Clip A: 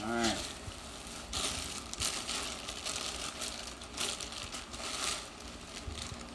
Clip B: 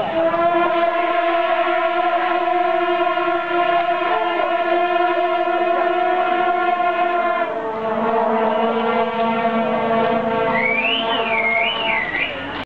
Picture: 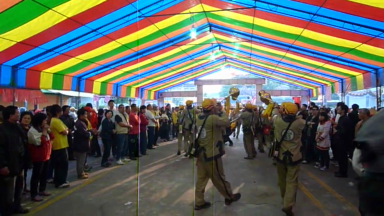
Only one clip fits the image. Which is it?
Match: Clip B